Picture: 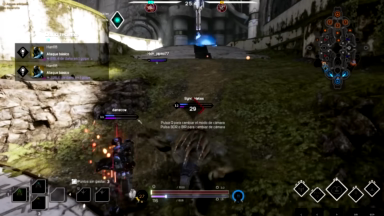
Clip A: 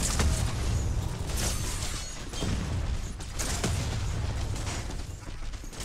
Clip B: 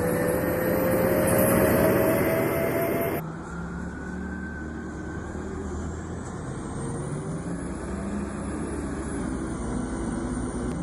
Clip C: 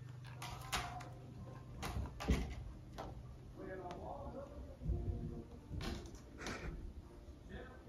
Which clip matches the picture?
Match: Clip A